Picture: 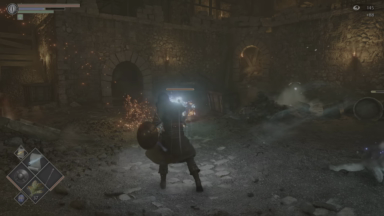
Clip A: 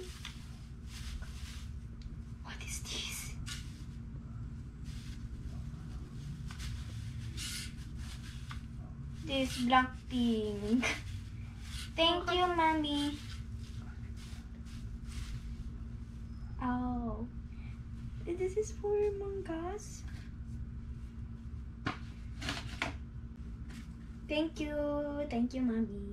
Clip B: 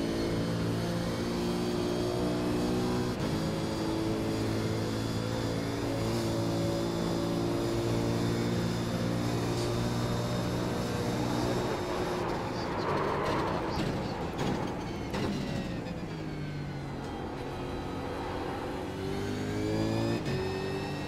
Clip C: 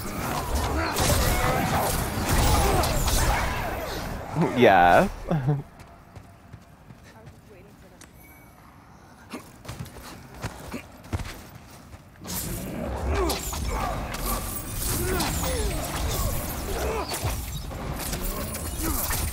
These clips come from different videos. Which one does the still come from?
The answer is C